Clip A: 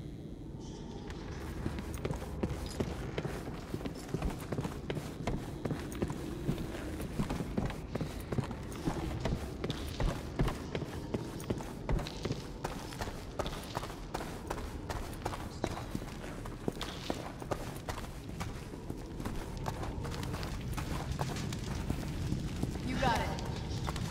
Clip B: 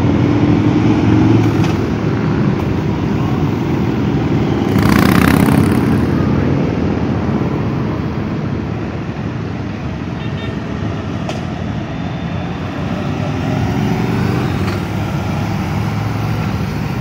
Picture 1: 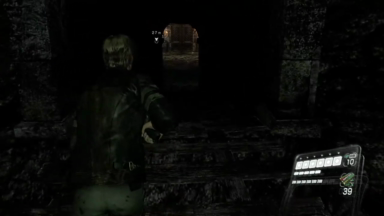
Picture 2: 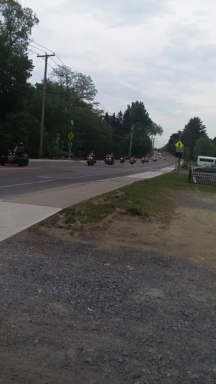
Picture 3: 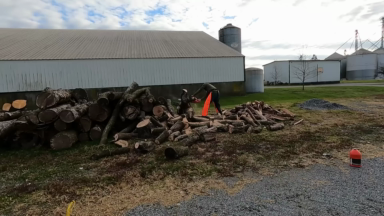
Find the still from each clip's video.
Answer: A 1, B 2